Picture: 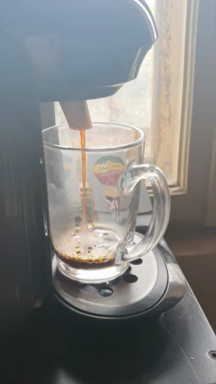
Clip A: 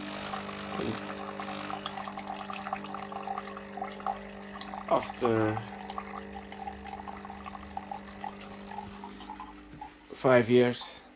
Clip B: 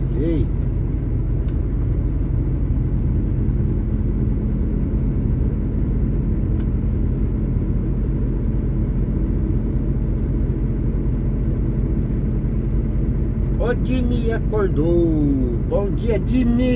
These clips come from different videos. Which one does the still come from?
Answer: A